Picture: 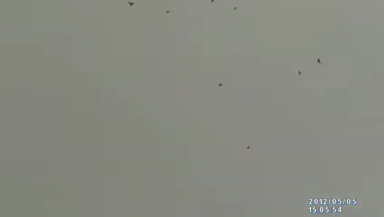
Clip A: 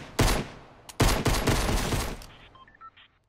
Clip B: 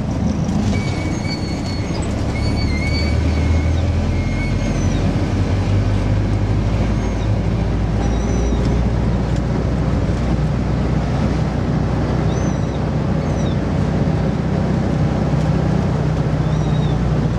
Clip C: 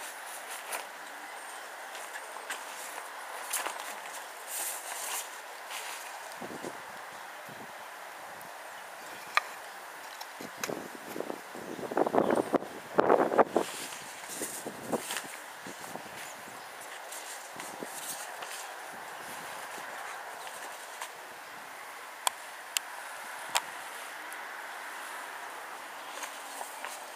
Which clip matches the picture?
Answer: C